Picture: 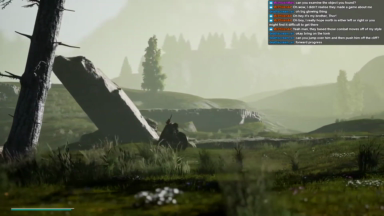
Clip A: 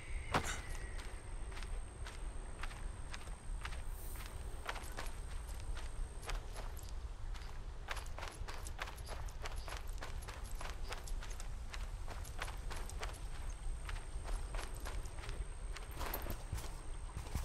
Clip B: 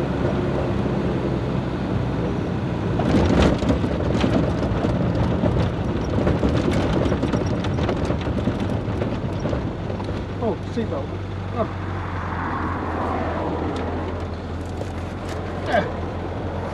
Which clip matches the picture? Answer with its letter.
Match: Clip A